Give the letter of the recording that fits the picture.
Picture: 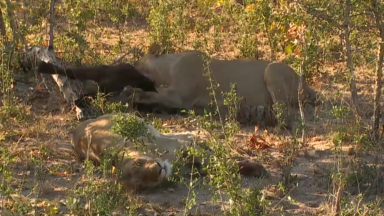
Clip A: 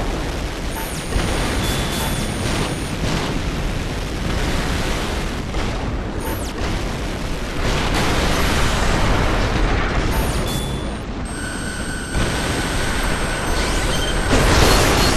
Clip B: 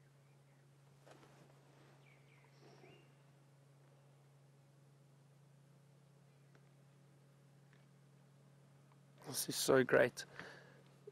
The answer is B